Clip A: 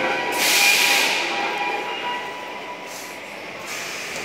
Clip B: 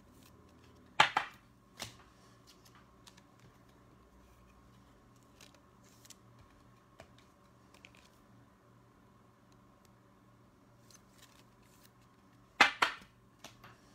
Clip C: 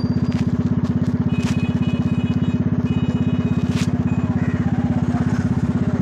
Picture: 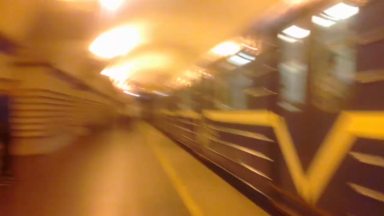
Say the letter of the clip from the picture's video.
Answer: A